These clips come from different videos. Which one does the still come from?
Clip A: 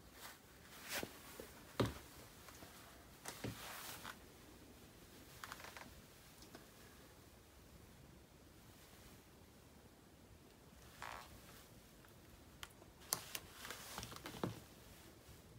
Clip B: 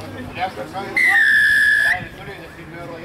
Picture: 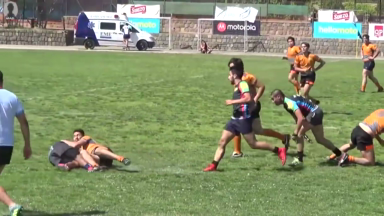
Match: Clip B